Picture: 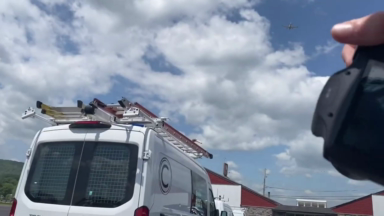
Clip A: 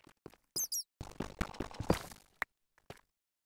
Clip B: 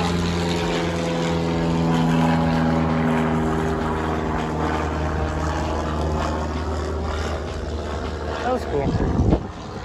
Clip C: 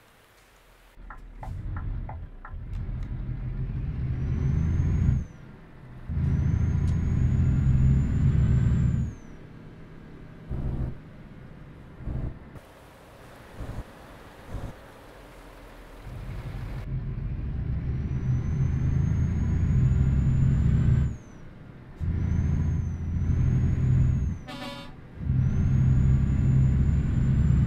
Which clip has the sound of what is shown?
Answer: B